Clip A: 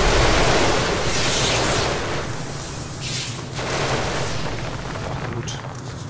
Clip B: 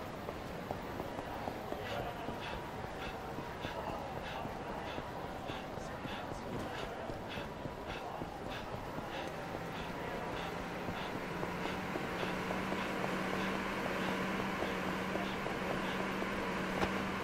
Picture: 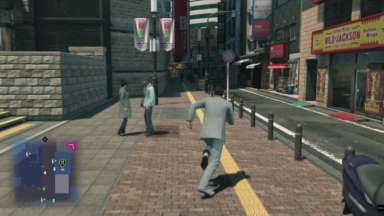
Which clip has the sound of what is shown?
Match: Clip B